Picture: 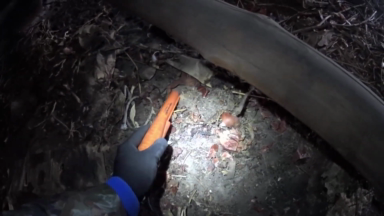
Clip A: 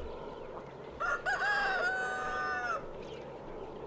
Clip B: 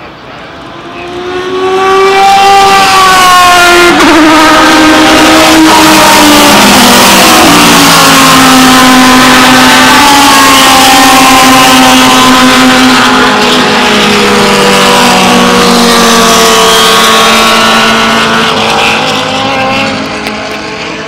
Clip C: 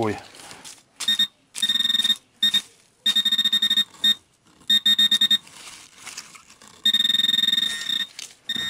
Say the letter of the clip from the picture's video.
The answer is C